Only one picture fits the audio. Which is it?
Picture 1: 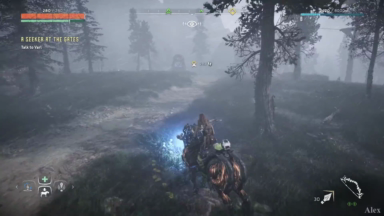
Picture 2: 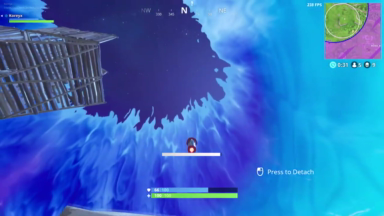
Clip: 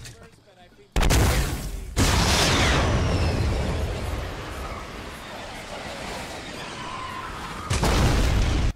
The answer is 2